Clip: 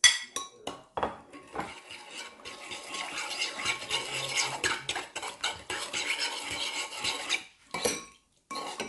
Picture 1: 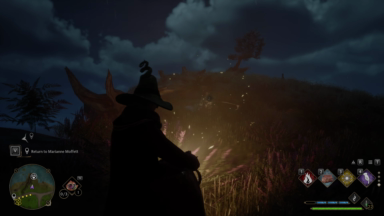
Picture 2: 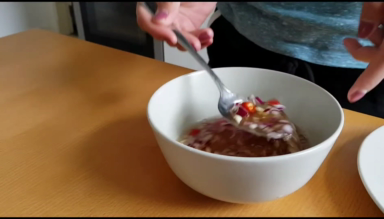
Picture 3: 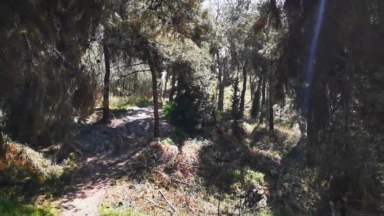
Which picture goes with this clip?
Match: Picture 2